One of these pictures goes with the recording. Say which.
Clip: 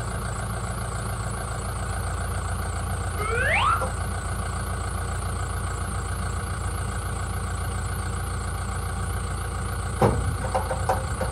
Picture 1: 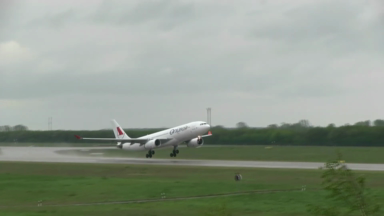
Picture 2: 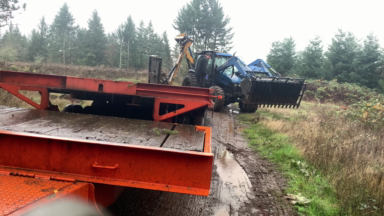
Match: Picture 2